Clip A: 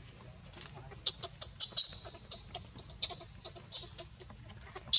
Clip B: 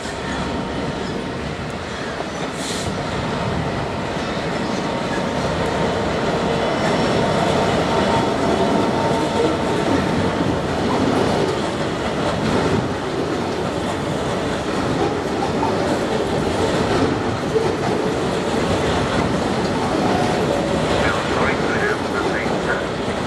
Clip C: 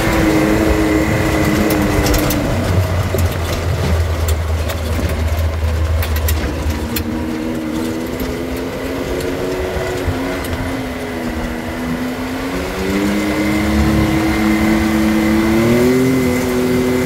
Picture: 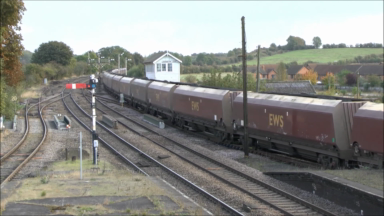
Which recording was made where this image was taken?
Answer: B